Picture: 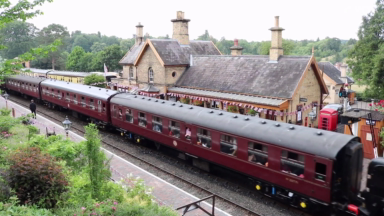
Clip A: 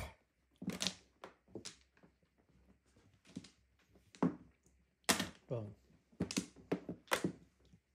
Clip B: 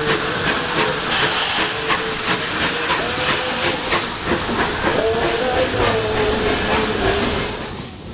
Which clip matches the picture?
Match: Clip B